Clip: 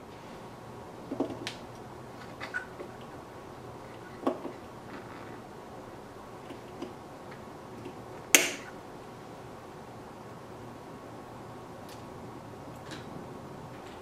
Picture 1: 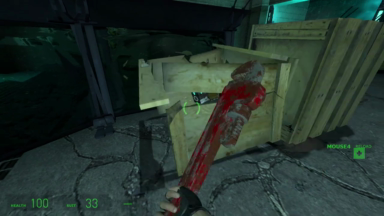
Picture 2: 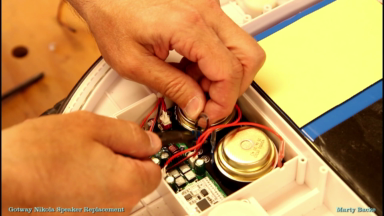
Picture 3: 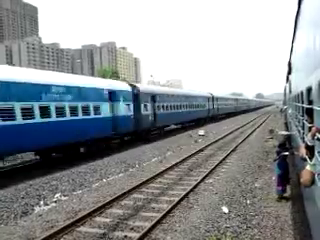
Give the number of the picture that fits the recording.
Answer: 2